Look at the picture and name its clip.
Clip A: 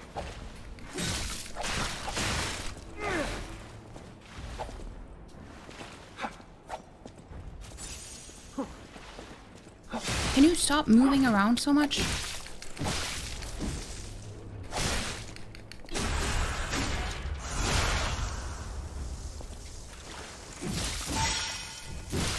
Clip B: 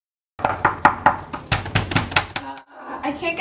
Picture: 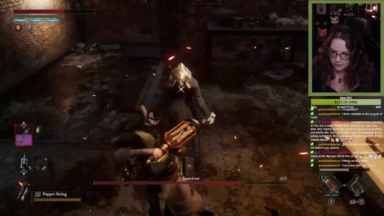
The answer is A